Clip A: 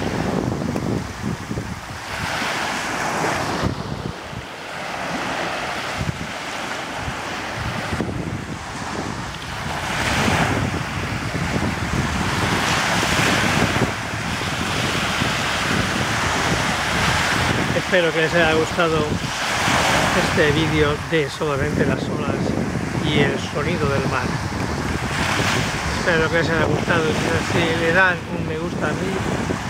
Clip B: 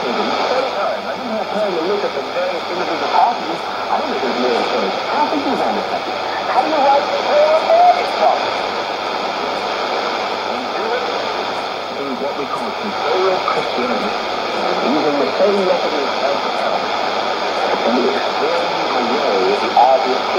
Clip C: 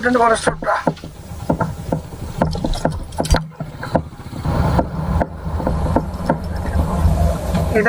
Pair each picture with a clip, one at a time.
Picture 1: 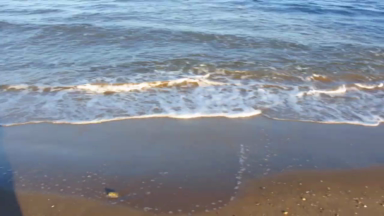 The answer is A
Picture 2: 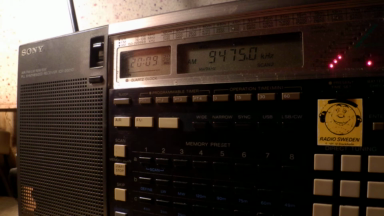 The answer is B